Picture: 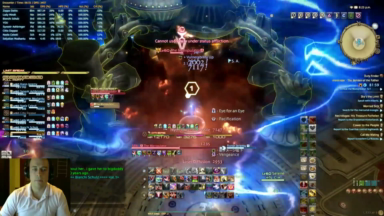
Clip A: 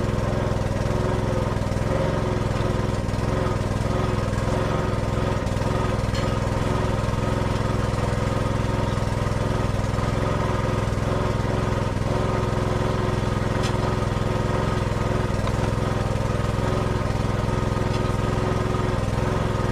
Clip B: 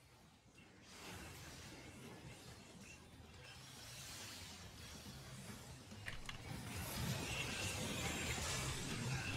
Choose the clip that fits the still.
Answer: B